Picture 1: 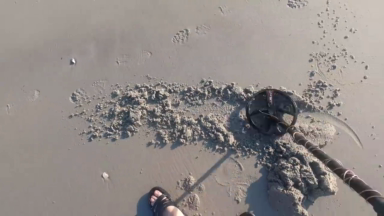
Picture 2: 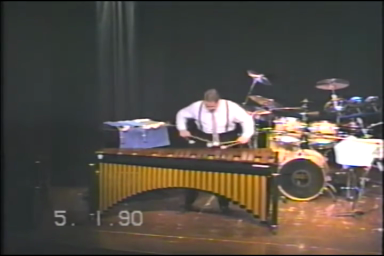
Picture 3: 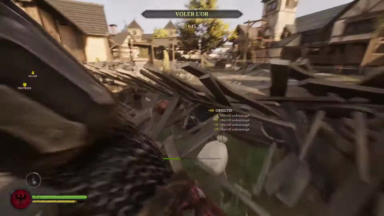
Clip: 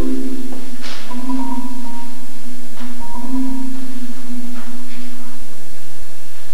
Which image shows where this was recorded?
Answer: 2